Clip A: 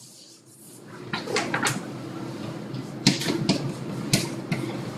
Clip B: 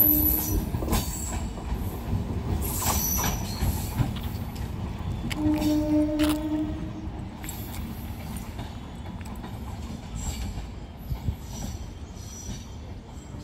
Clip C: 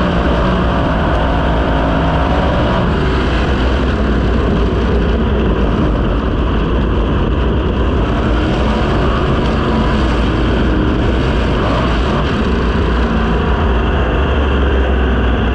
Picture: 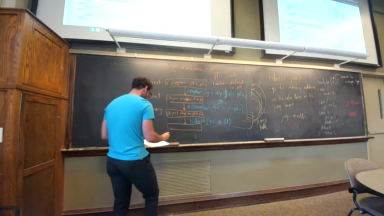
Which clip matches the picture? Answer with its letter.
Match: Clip A